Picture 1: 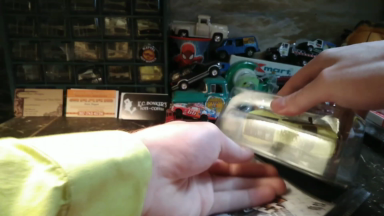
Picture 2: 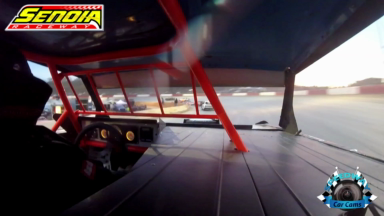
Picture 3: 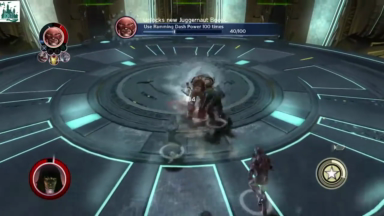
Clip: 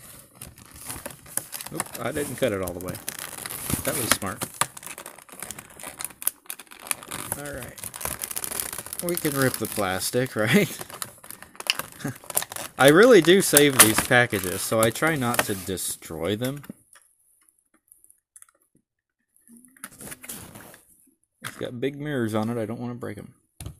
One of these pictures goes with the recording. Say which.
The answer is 1